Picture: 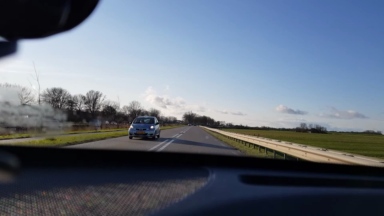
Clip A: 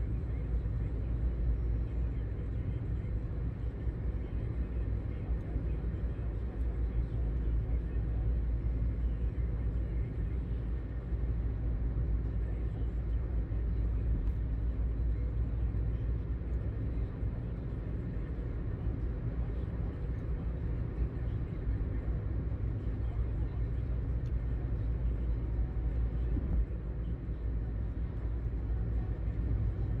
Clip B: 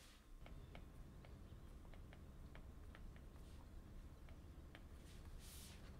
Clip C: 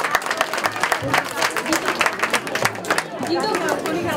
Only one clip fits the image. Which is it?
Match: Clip A